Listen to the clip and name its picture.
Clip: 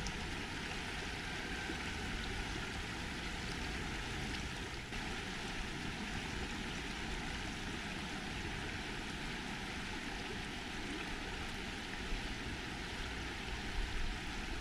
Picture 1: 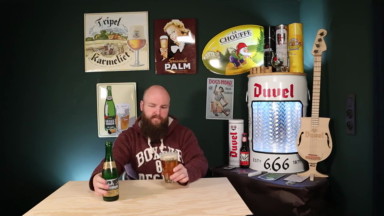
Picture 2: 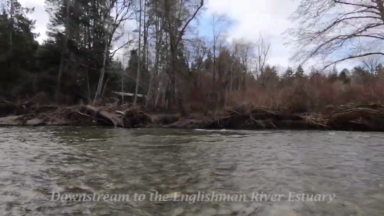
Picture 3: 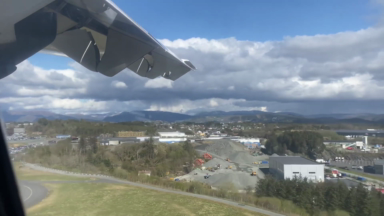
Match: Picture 2